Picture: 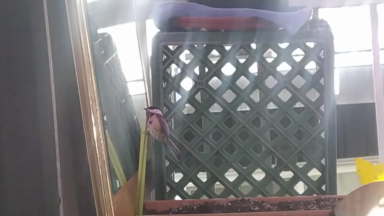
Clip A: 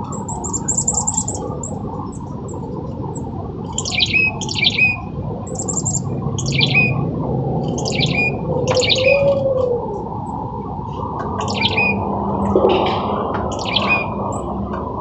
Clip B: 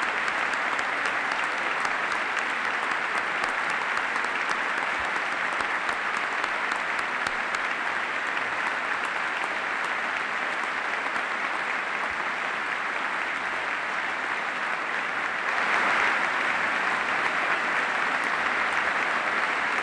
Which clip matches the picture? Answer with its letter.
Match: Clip A